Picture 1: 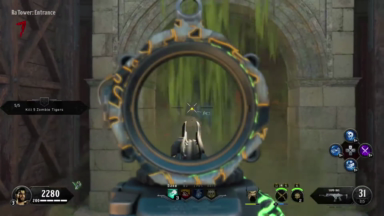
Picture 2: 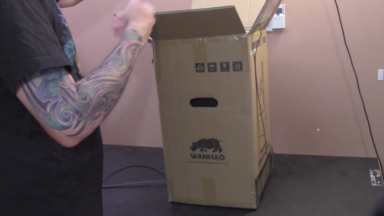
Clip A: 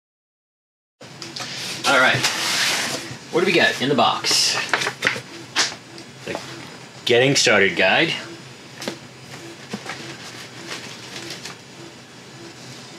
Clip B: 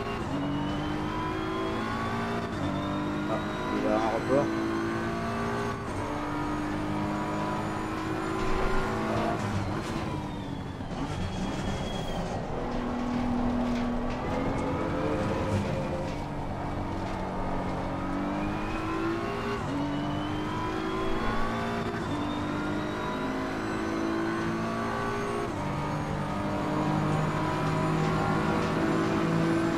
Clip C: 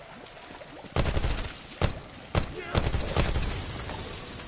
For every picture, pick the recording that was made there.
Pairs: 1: C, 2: A